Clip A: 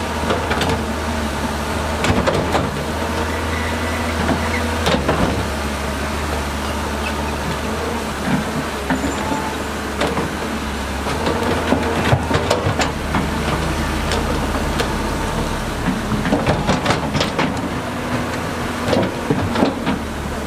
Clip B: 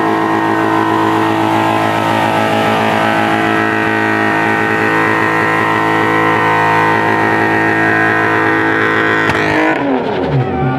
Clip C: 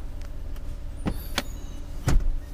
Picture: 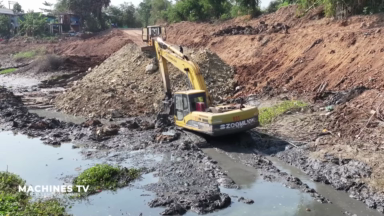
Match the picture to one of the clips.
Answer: A